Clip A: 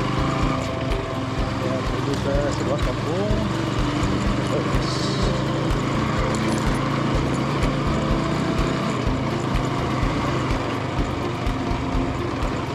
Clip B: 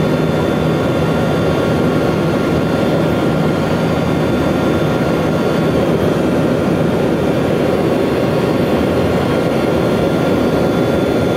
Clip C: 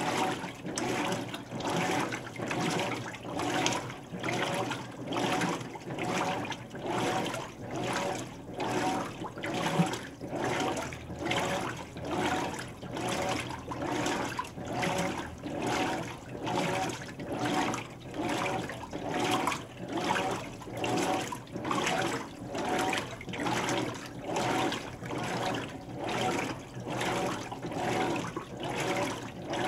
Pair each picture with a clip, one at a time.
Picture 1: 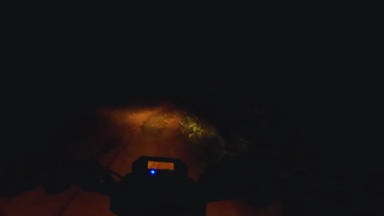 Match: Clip A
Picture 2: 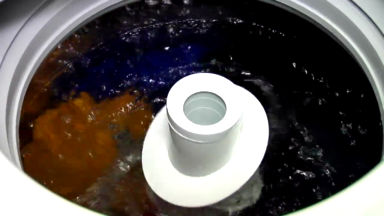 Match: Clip C